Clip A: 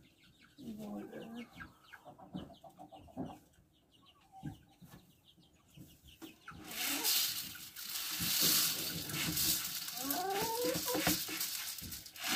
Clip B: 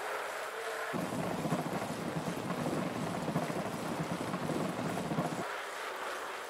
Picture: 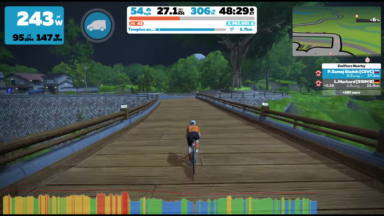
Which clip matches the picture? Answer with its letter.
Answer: B